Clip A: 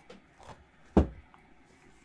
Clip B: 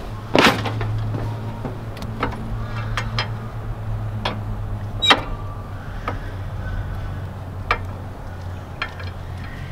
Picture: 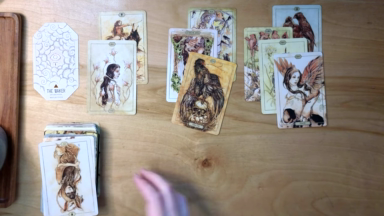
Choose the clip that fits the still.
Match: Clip A